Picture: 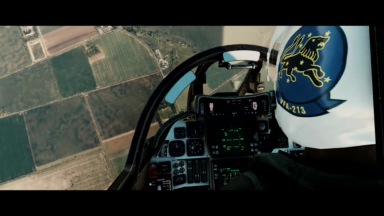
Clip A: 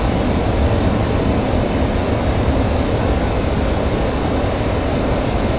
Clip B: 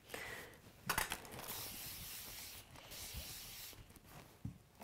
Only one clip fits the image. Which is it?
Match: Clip A